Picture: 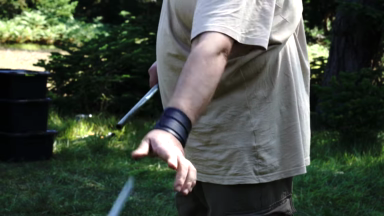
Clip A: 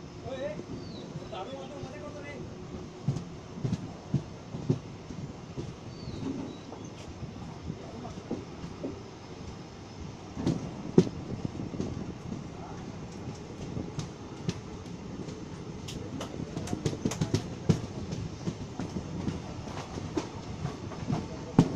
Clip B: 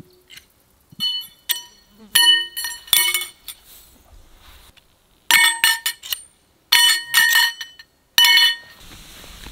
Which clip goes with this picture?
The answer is B